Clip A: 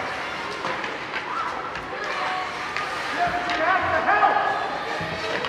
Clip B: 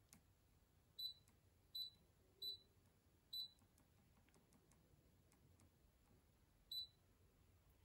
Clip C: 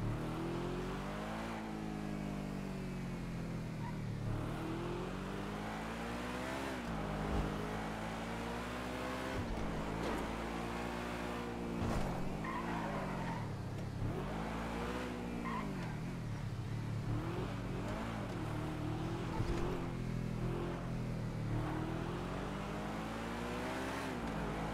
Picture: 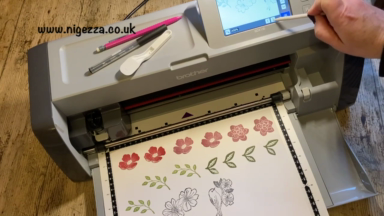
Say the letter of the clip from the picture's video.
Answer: B